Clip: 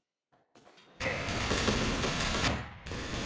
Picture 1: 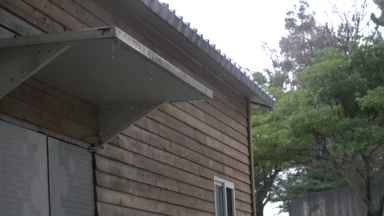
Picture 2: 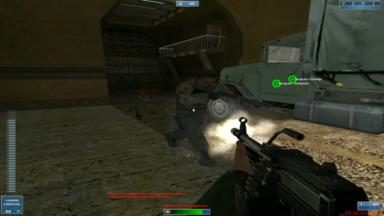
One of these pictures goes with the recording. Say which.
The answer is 2